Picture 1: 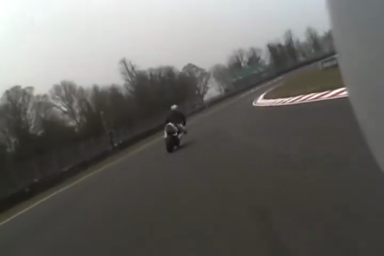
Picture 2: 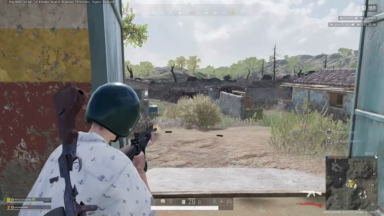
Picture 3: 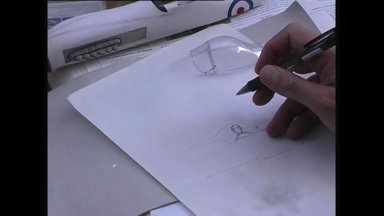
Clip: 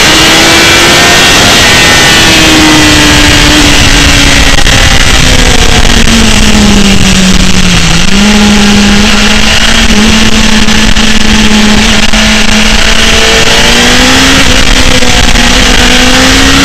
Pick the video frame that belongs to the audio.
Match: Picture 1